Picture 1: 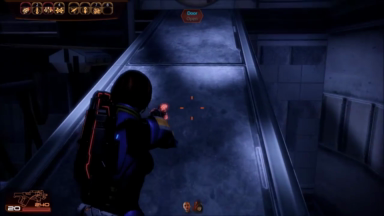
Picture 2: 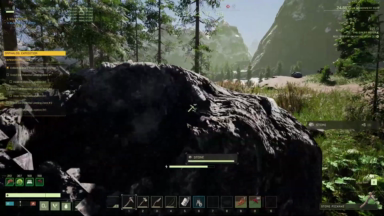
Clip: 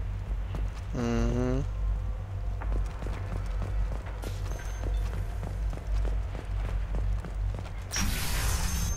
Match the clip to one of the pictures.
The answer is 1